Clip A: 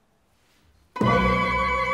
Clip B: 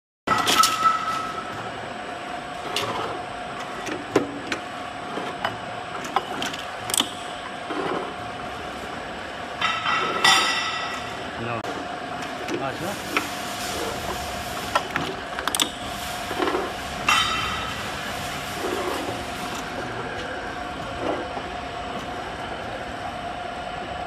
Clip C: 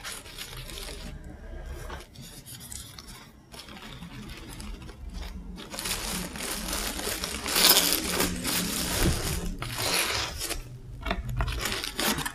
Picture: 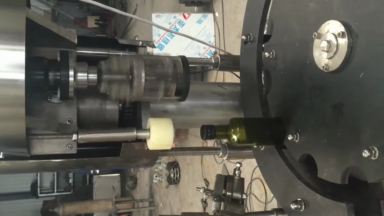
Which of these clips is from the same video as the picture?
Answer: B